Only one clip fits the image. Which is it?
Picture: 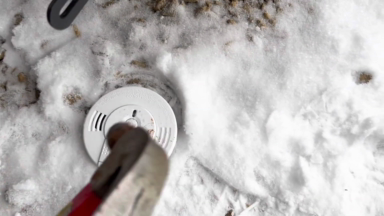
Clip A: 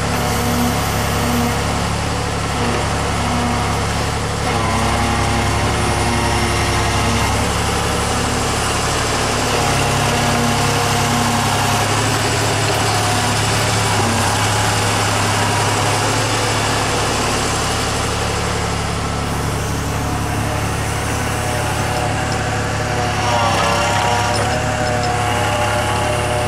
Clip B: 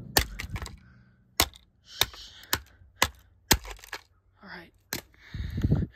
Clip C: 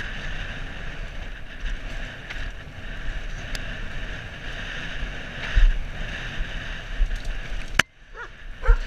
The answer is B